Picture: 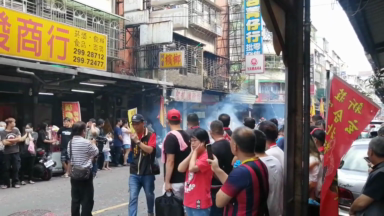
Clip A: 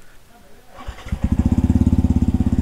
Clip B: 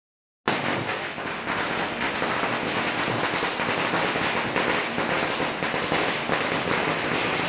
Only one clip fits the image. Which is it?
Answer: B